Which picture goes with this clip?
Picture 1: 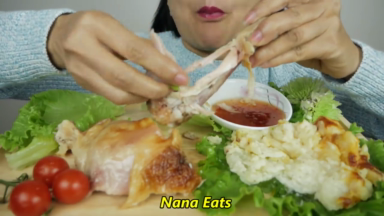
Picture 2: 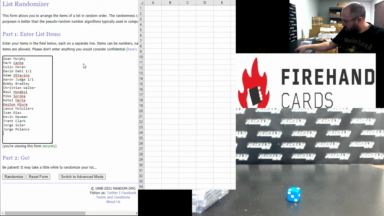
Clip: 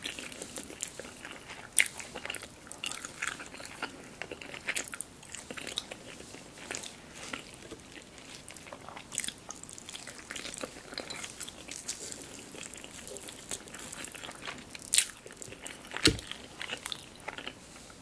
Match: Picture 1